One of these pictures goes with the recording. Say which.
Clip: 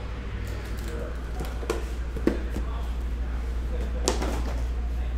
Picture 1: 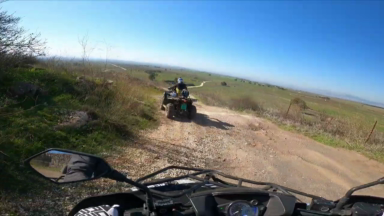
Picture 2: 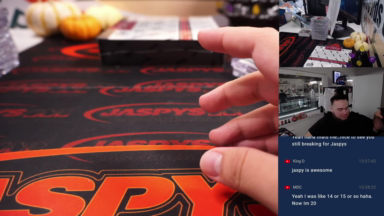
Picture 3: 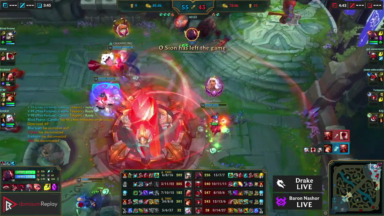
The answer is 2